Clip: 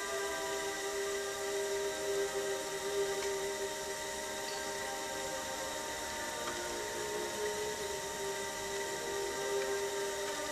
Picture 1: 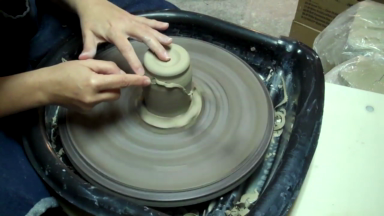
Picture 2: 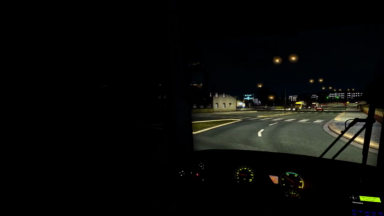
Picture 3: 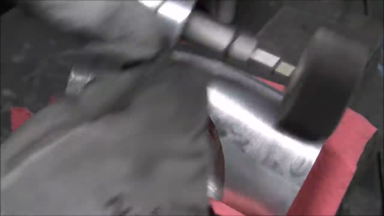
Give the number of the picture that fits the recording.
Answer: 1